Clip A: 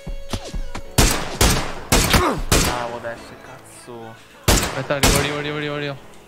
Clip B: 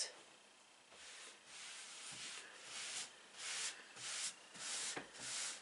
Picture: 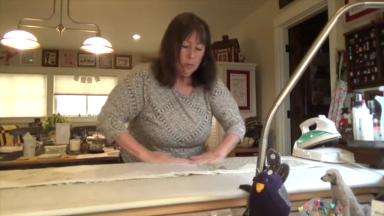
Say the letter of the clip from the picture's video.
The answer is B